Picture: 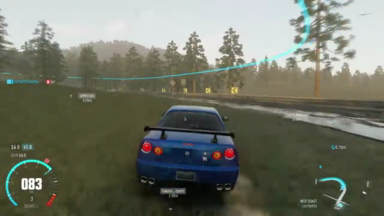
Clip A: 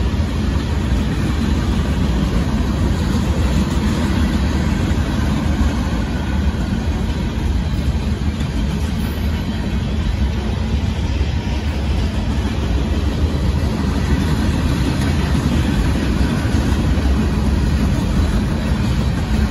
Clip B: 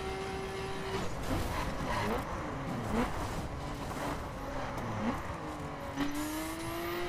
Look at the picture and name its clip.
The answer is B